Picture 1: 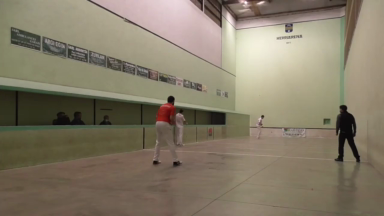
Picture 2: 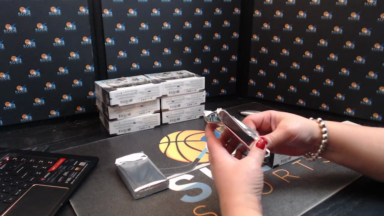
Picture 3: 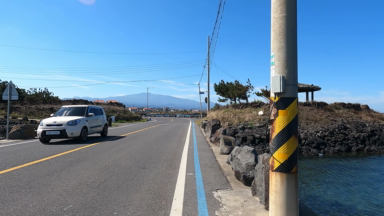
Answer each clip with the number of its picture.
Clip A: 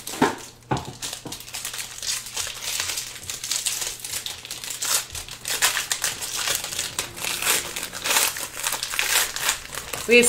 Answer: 2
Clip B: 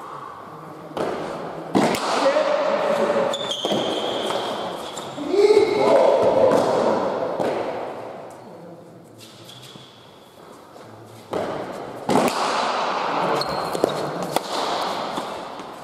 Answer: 1